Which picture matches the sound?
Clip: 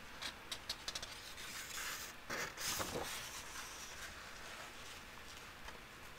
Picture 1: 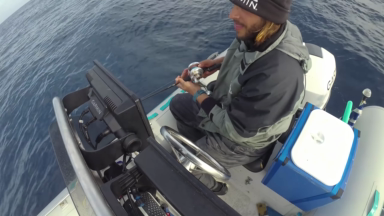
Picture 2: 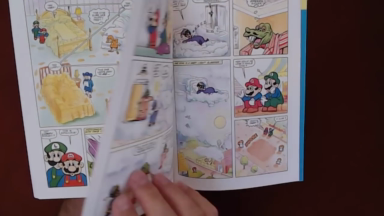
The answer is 2